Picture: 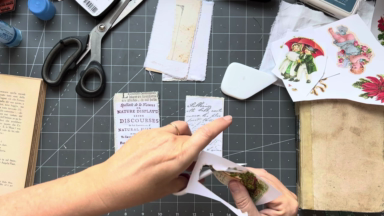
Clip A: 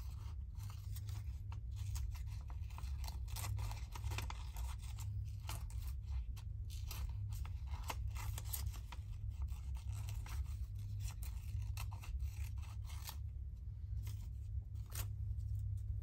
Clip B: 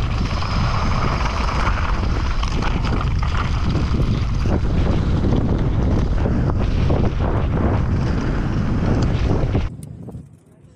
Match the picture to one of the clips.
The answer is A